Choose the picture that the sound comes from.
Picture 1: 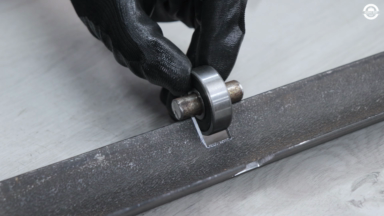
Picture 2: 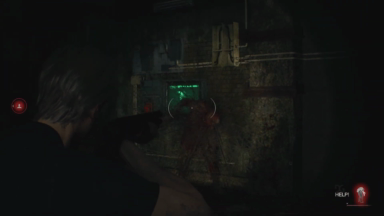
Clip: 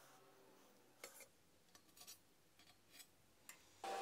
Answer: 1